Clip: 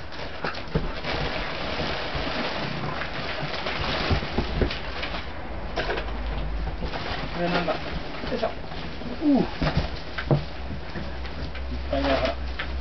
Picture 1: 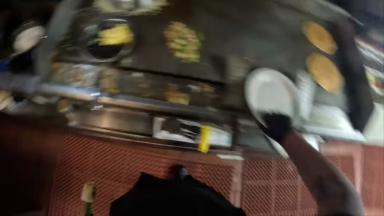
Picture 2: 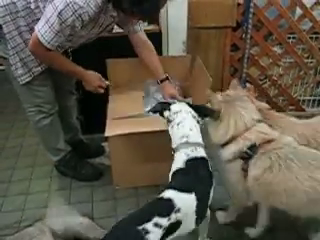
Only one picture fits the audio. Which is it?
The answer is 2